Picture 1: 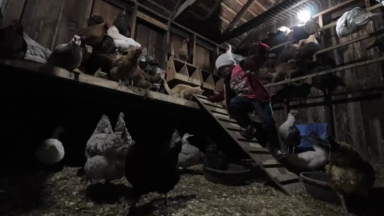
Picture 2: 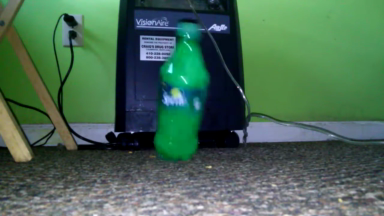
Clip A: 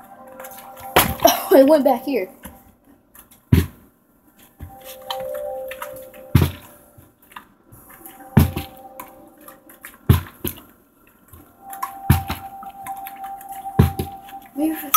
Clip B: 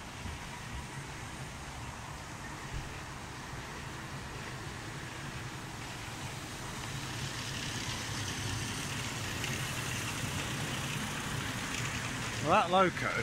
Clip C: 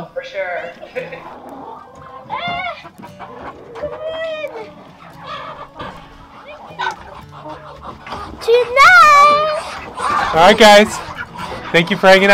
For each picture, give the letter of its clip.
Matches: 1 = C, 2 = A